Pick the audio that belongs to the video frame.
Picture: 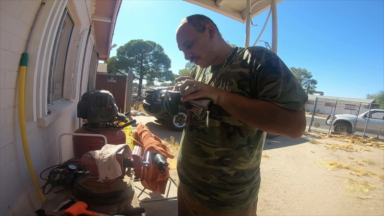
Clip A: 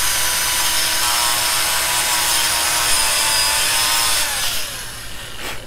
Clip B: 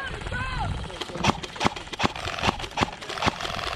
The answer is A